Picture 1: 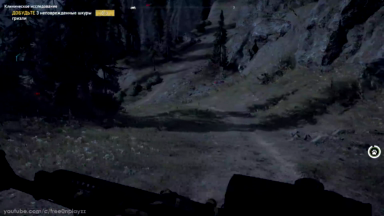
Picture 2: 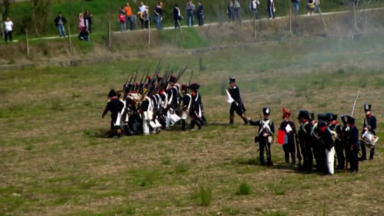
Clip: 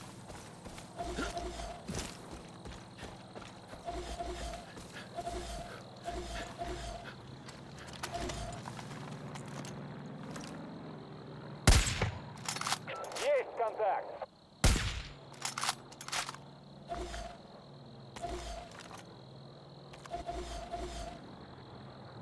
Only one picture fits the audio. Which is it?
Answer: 1